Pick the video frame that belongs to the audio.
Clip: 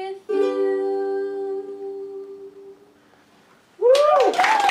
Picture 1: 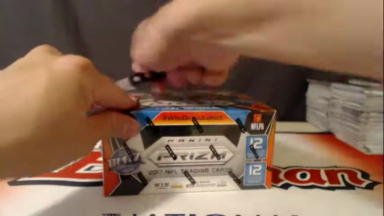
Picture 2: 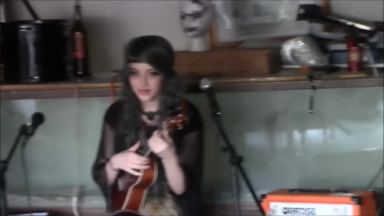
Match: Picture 2